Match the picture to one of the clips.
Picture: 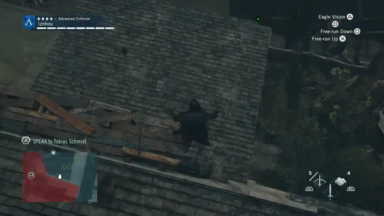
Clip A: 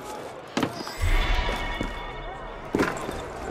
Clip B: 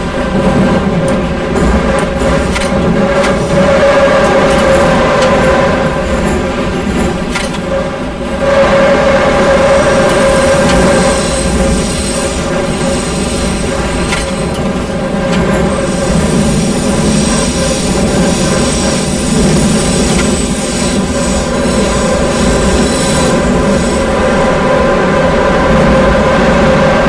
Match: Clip A